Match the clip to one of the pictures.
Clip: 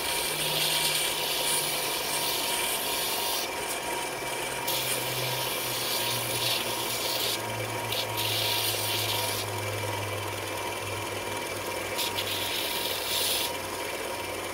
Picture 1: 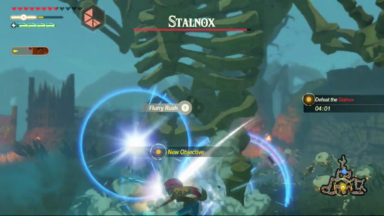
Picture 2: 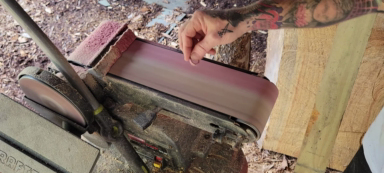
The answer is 2